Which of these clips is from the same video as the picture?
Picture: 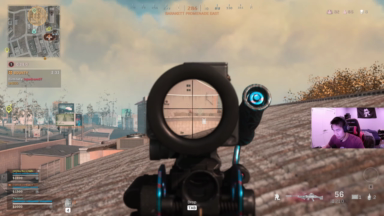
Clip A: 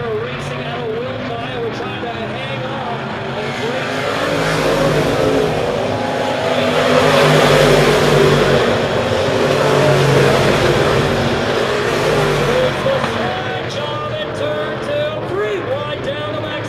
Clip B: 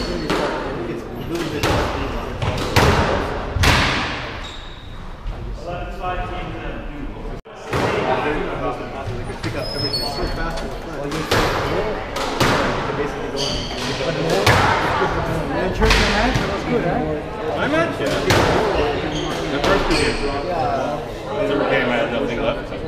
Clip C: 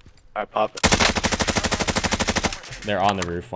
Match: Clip C